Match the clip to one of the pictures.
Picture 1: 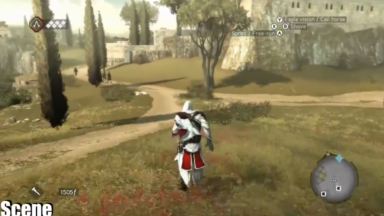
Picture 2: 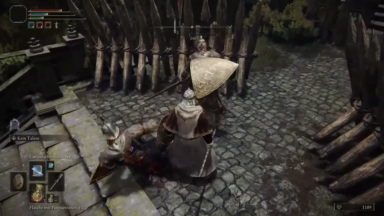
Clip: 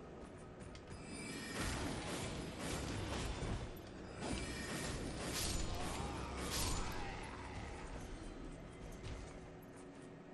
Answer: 2